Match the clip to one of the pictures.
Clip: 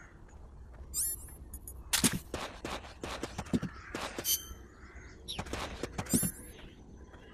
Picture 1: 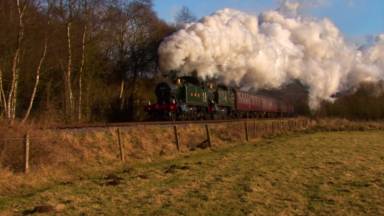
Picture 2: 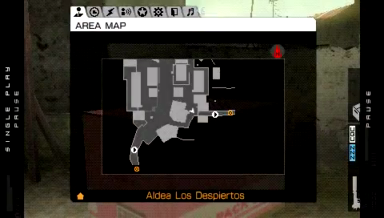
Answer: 2